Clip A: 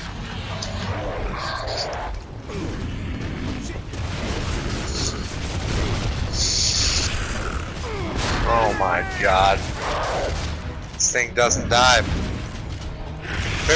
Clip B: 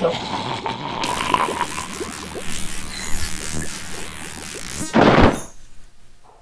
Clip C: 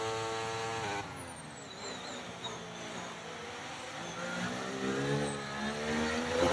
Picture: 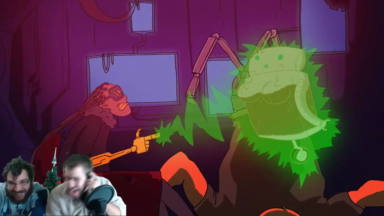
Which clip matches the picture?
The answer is B